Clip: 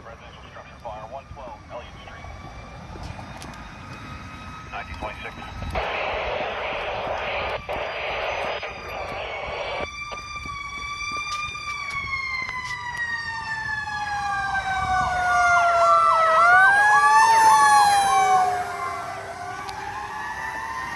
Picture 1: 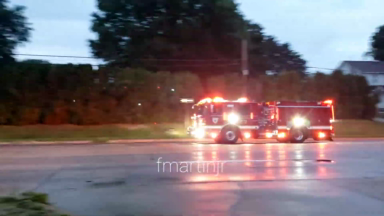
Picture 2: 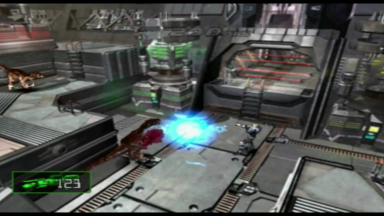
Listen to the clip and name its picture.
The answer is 1